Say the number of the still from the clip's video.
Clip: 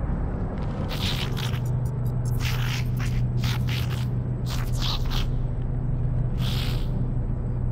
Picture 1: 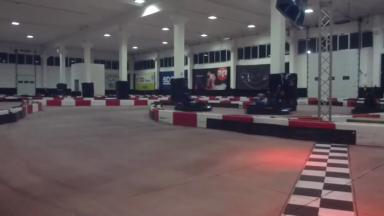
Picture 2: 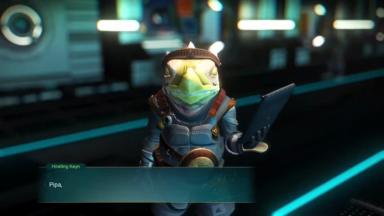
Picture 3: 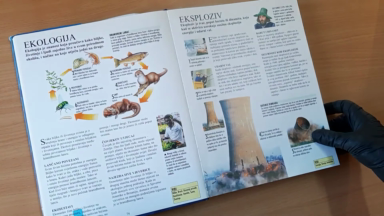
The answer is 2